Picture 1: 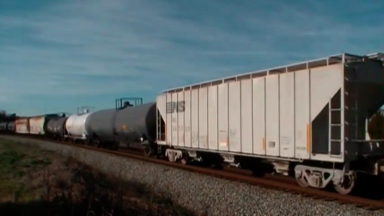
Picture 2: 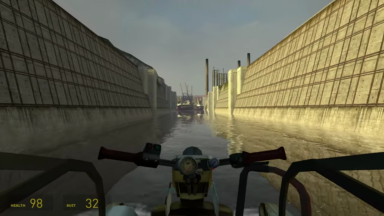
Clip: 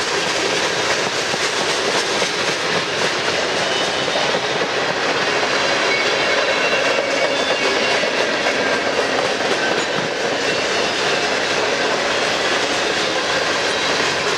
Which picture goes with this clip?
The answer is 1